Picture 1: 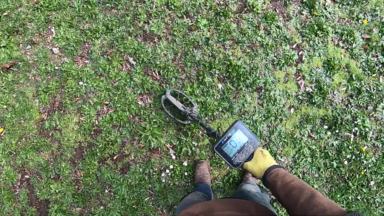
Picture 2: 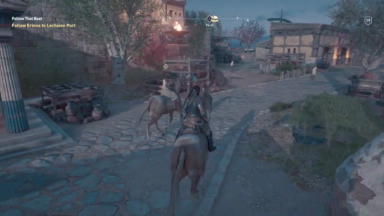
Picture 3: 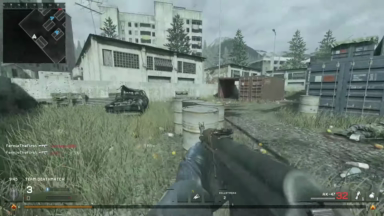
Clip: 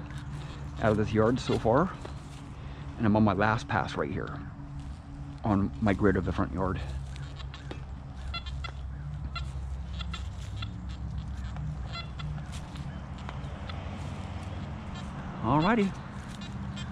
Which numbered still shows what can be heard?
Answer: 1